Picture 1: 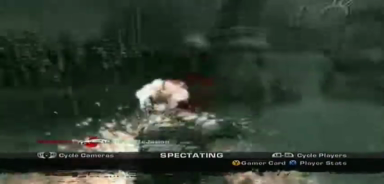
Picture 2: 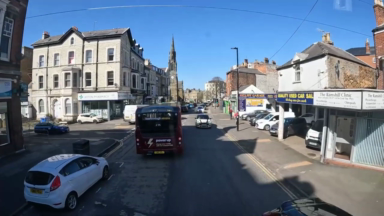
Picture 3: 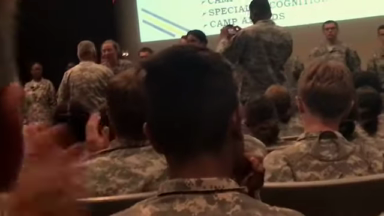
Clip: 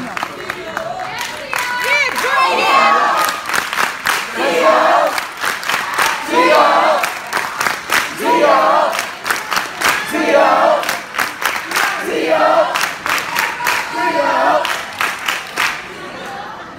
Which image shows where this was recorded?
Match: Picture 3